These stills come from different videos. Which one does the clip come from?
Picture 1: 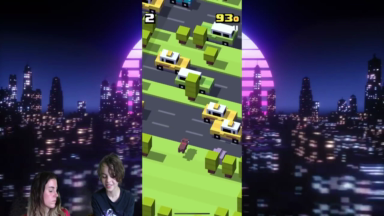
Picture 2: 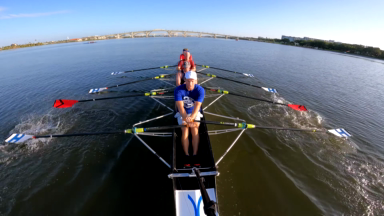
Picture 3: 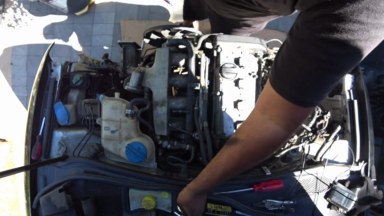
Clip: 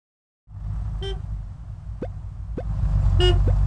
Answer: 1